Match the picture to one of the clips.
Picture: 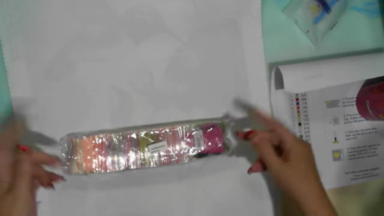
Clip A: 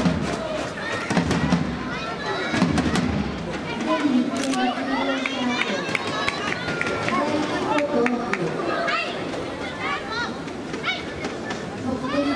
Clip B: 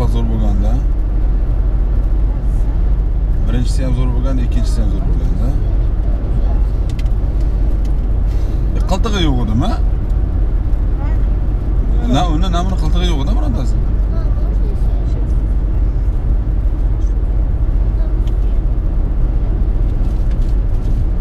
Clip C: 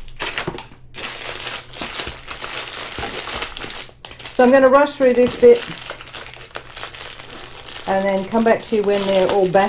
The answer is C